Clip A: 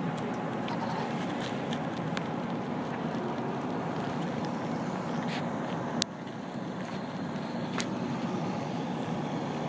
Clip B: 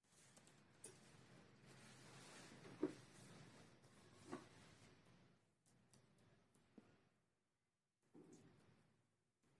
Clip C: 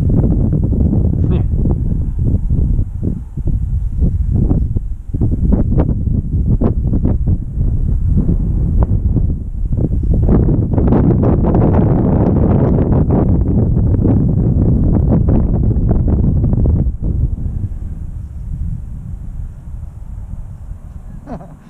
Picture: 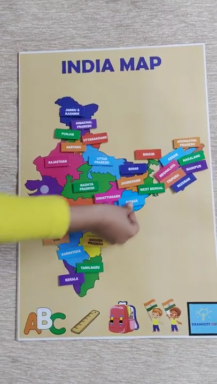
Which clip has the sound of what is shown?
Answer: B